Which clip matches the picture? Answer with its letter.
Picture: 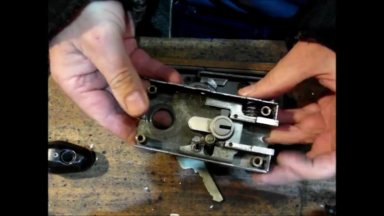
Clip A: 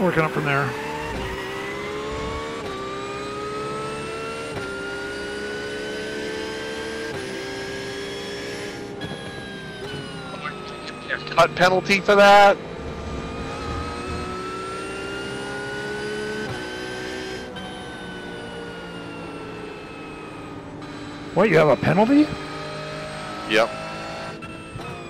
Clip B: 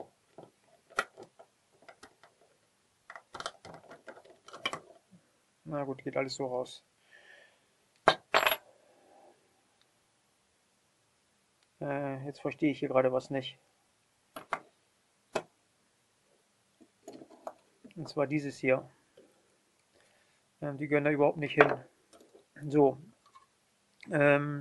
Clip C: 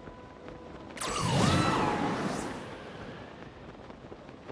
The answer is B